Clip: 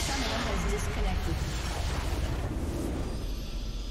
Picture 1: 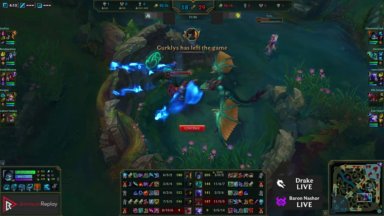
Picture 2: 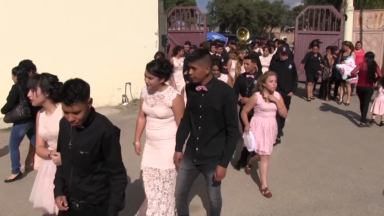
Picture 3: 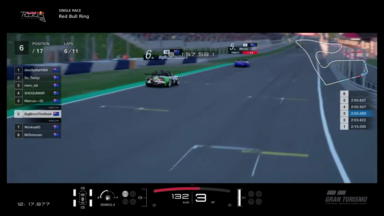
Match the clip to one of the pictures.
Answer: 1